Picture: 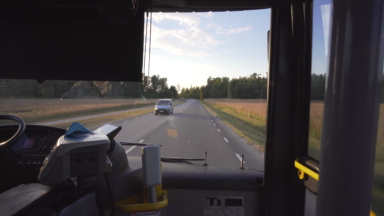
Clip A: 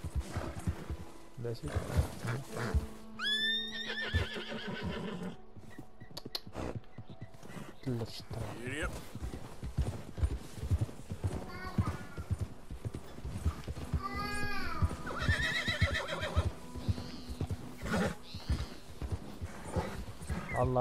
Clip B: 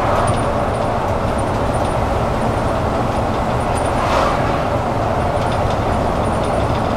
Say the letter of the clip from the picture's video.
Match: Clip B